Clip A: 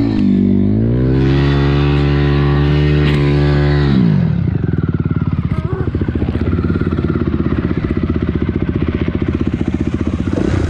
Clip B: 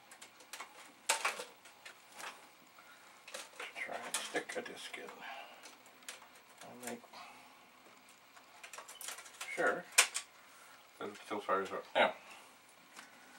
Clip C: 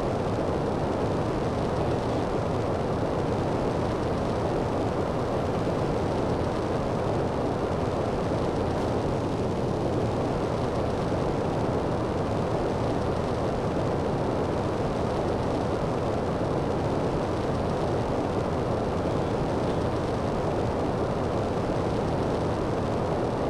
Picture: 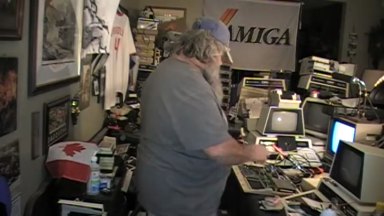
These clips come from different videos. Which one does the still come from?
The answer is B